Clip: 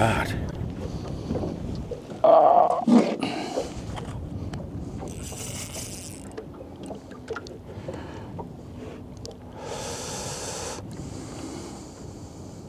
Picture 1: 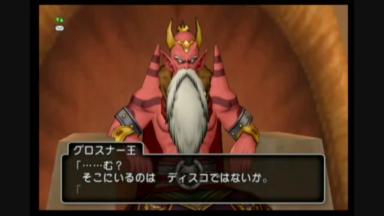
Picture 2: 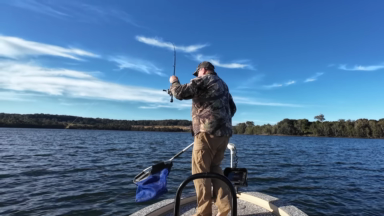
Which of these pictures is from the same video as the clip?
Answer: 2